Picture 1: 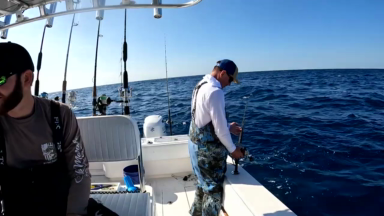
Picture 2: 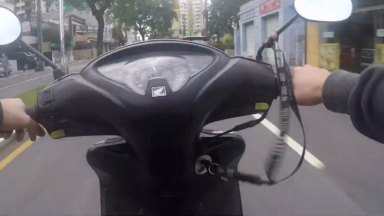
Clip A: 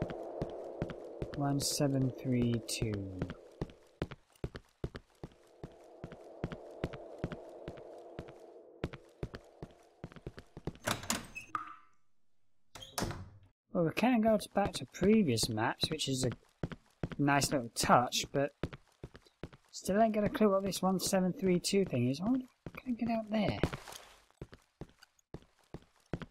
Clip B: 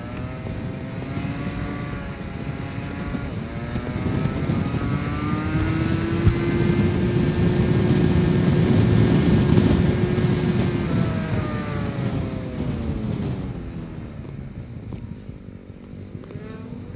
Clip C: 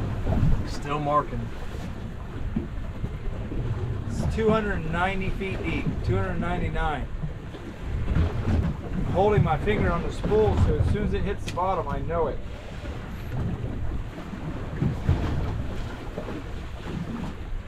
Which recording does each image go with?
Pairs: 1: C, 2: B